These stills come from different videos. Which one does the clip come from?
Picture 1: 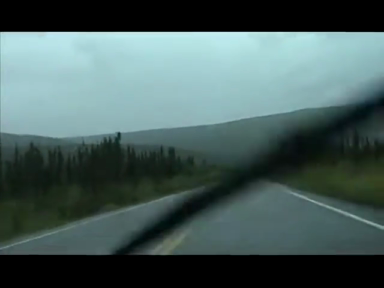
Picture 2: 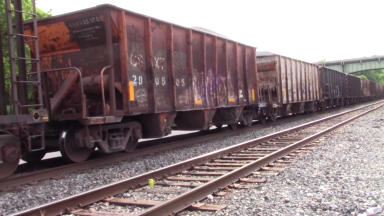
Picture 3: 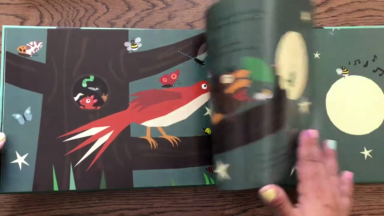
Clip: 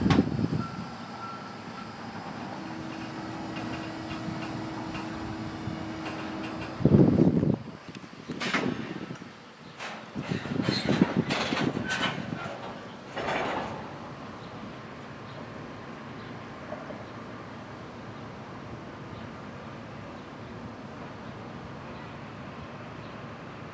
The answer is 2